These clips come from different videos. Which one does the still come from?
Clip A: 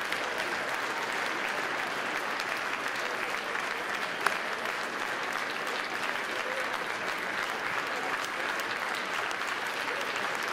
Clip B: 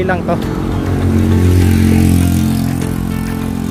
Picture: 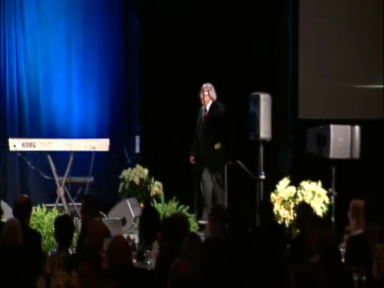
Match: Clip A